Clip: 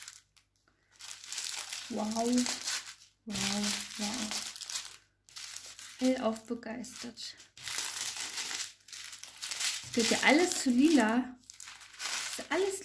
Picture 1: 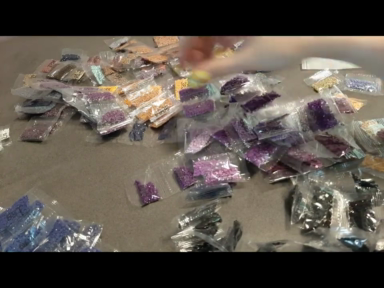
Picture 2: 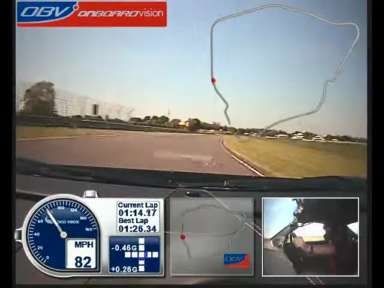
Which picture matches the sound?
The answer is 1